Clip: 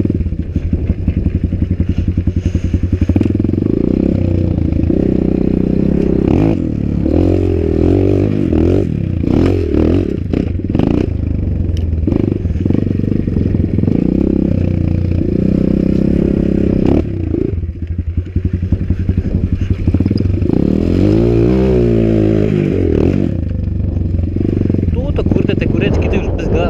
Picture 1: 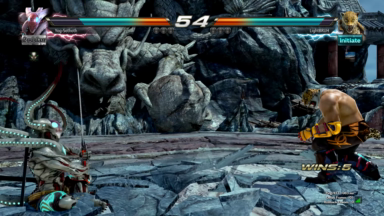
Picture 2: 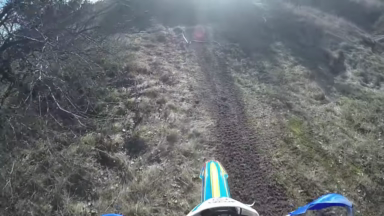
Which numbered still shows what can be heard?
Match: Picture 2